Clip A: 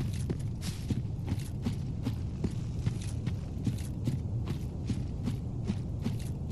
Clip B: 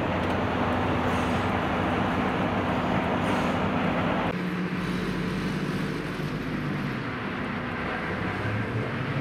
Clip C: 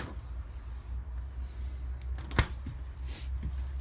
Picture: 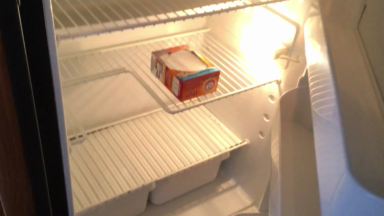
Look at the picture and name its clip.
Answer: C